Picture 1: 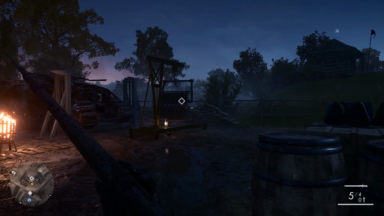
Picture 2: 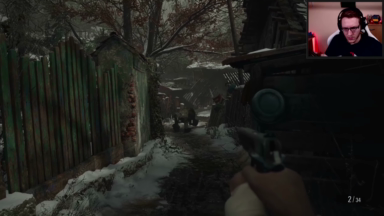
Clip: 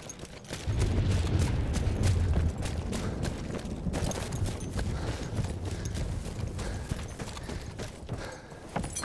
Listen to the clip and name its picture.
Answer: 1